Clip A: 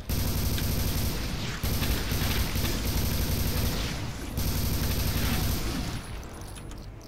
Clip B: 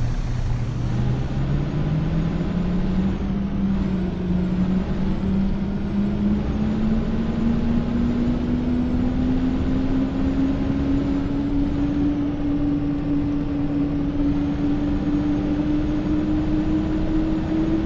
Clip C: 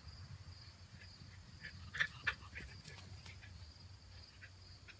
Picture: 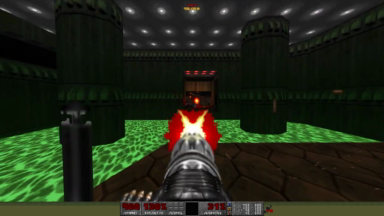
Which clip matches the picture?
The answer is A